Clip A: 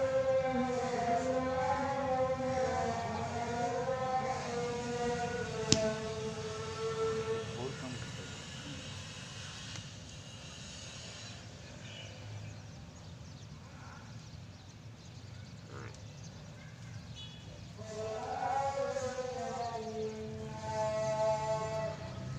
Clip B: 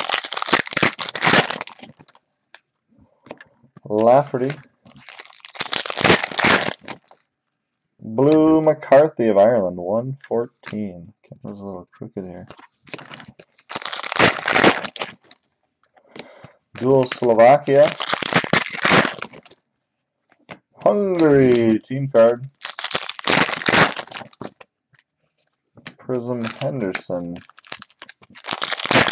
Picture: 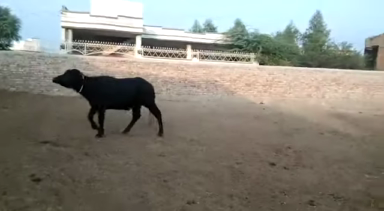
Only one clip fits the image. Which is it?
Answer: A